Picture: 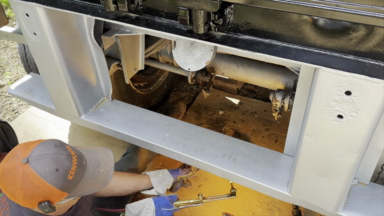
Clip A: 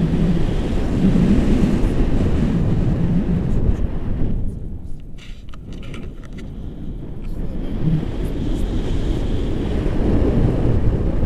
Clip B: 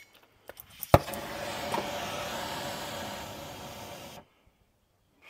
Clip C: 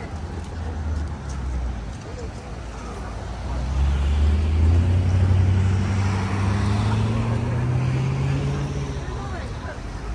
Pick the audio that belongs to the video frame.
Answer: B